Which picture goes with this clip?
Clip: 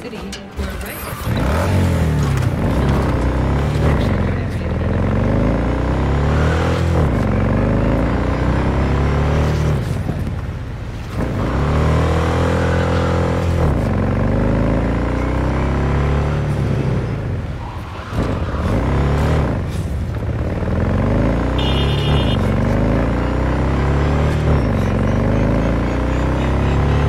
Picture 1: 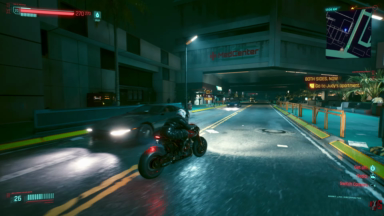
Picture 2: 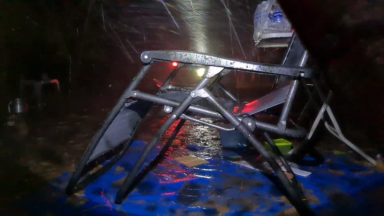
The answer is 1